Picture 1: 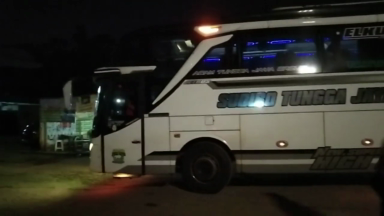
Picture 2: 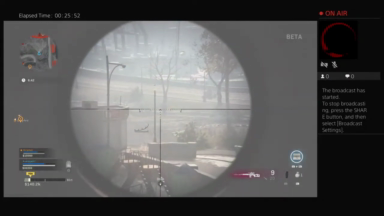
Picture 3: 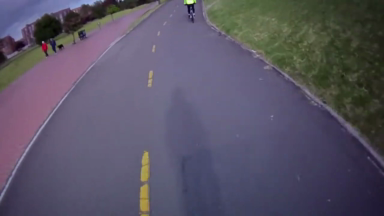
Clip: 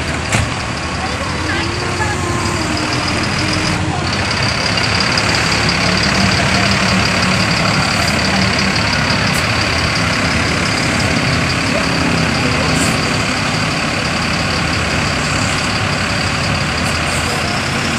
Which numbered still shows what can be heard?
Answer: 1